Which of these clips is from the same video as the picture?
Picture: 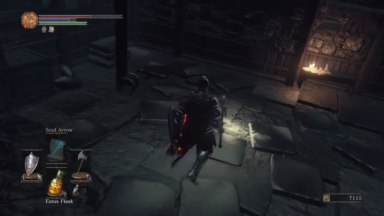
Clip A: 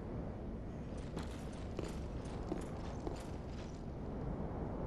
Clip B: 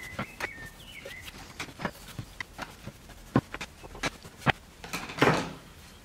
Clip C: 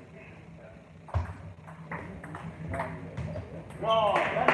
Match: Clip A